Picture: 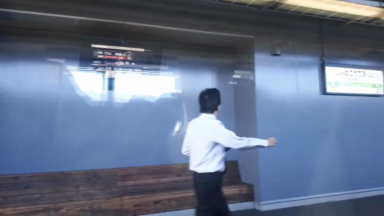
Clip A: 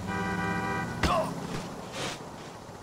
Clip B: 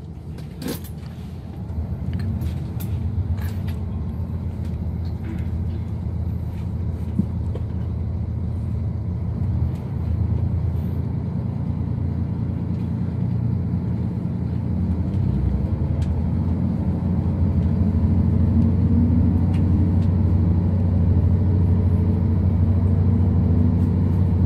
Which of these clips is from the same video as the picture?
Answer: B